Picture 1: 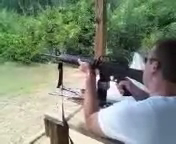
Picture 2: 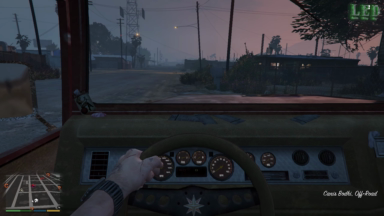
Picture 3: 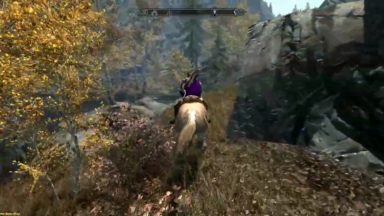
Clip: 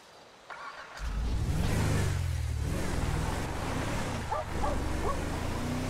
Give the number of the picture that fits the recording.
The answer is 2